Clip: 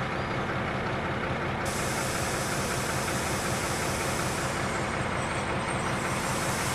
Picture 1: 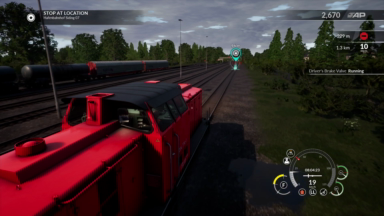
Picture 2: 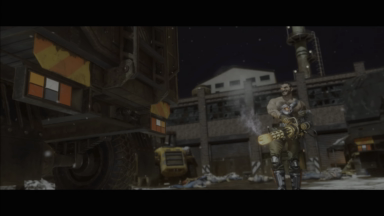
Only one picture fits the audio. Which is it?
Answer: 1